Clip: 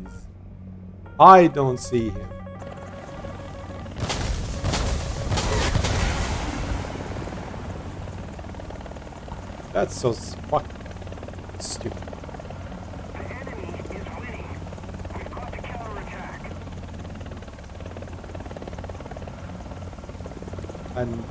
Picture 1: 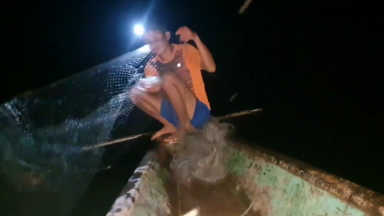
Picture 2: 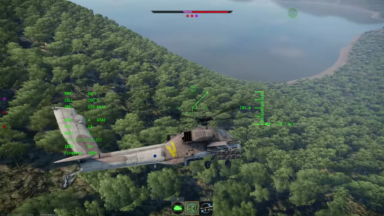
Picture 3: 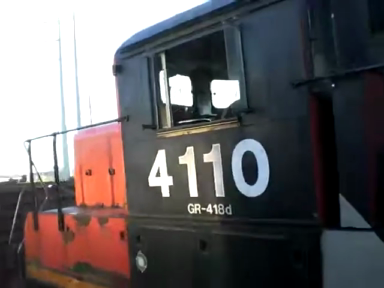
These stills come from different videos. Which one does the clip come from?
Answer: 2